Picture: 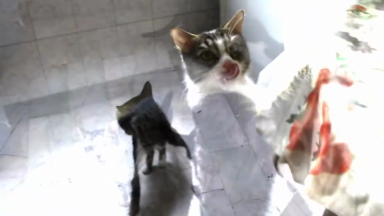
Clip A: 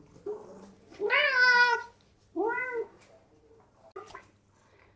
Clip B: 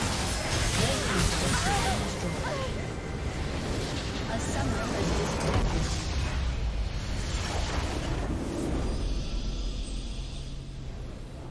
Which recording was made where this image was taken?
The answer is A